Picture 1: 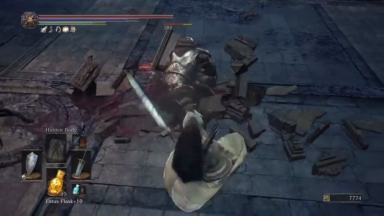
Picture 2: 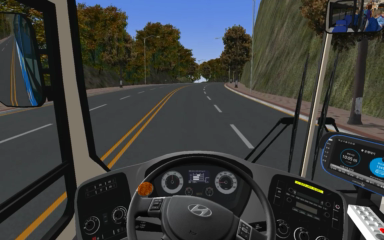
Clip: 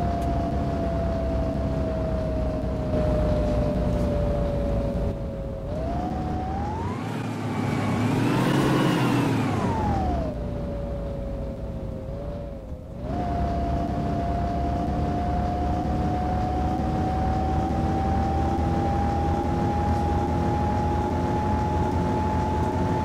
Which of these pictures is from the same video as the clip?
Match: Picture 2